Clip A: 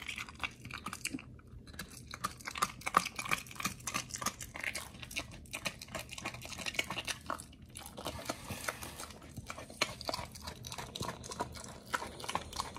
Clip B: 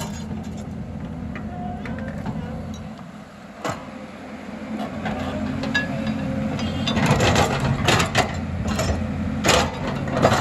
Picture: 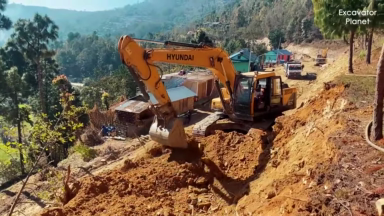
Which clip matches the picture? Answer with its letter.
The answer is B